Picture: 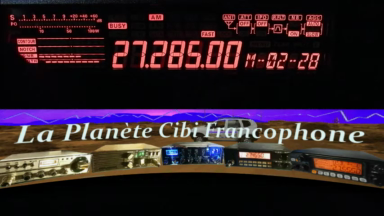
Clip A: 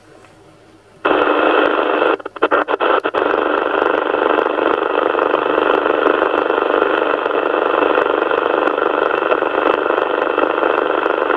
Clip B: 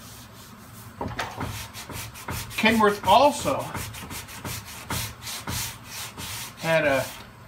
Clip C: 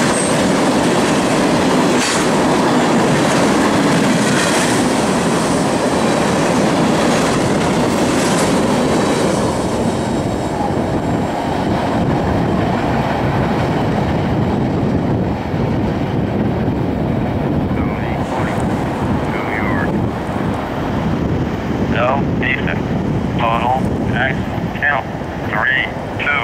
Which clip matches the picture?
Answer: A